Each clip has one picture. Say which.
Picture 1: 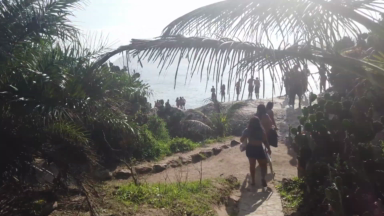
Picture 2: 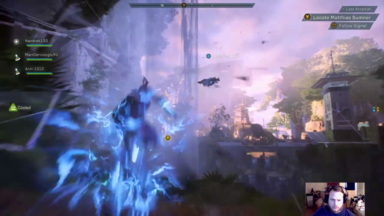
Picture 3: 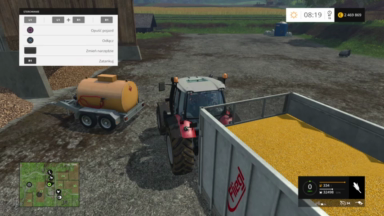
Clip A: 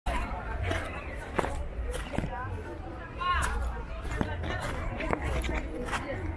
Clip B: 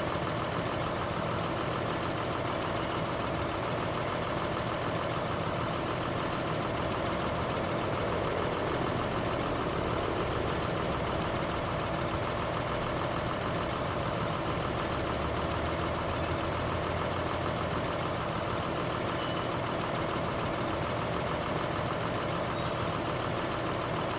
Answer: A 1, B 3